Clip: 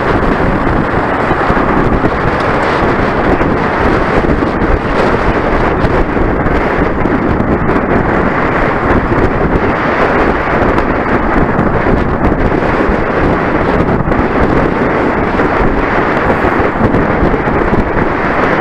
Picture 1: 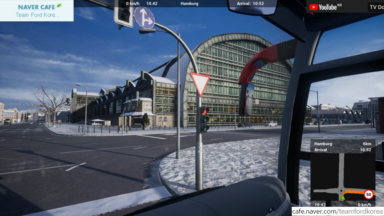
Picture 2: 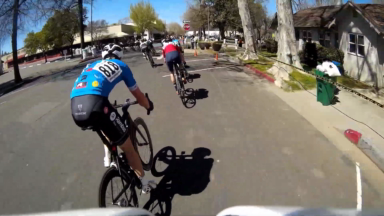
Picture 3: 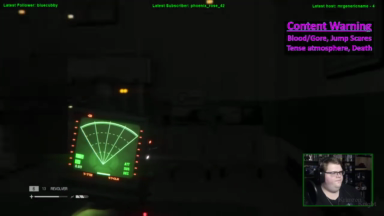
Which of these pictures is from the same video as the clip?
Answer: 2